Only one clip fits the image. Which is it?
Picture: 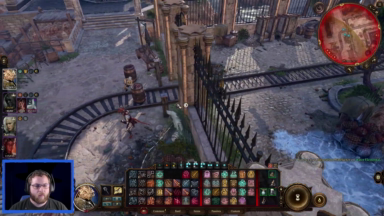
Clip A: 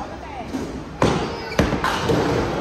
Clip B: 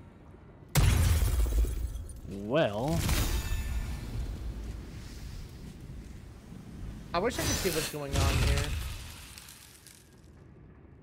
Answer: B